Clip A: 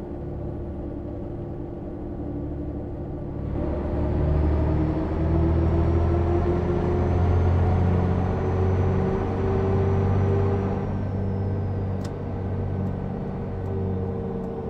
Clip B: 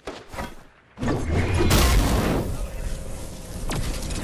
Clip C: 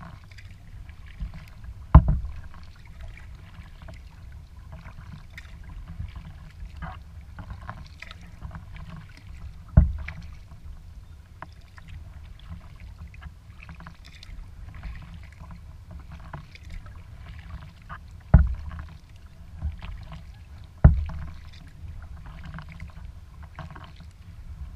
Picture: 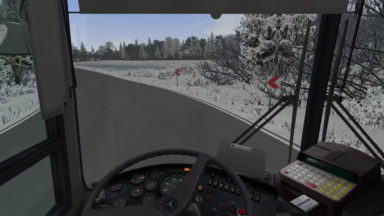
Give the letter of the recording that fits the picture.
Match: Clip A